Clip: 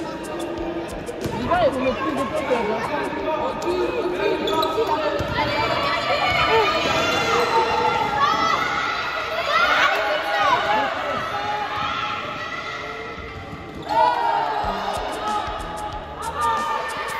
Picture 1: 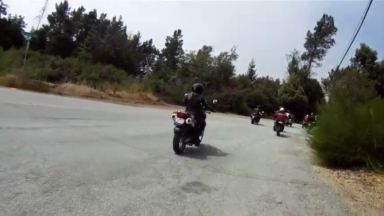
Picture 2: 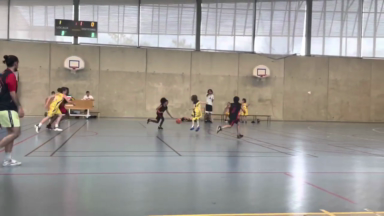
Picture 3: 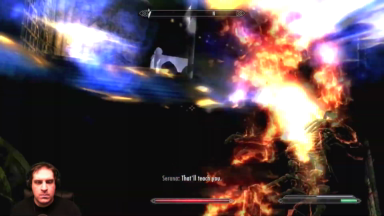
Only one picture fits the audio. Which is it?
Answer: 2